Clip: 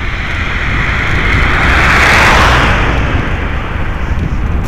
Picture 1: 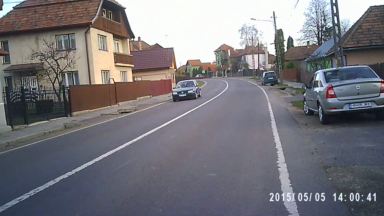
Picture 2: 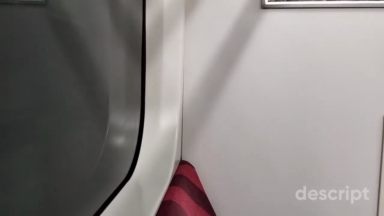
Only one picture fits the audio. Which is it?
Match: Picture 1